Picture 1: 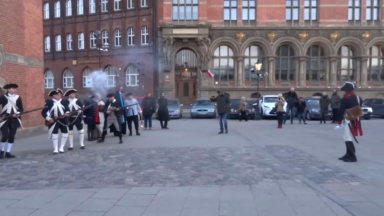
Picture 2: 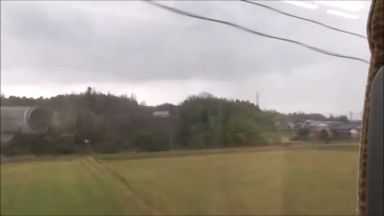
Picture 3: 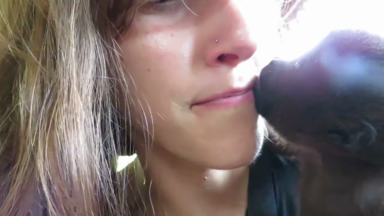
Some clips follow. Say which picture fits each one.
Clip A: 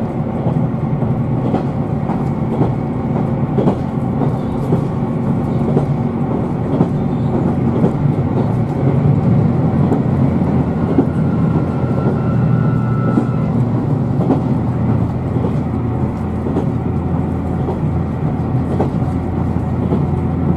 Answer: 2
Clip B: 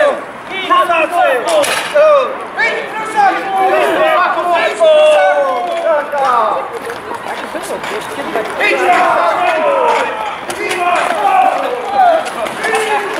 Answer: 1